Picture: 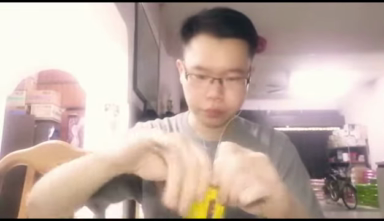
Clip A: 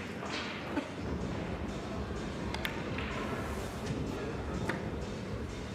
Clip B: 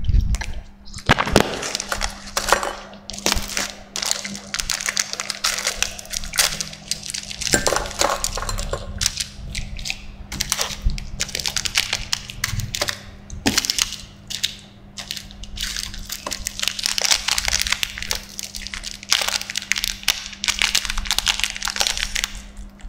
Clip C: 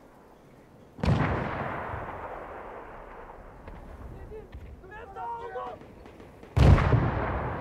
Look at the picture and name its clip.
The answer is B